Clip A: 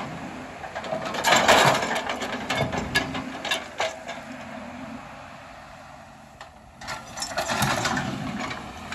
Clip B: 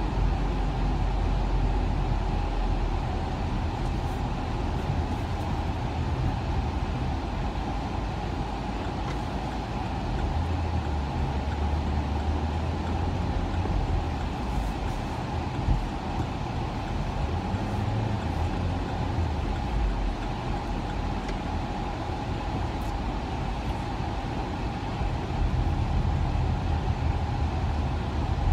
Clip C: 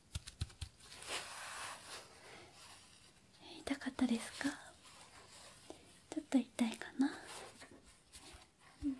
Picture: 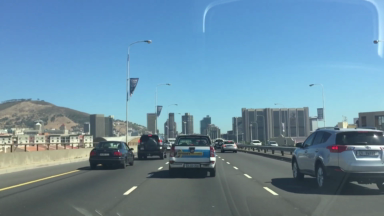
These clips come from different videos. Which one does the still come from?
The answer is B